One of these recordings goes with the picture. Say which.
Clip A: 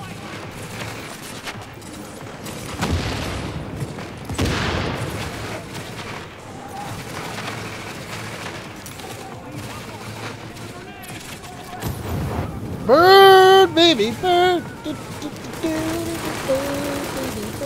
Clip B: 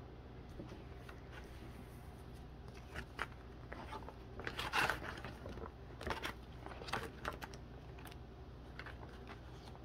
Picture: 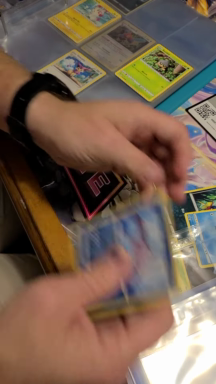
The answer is B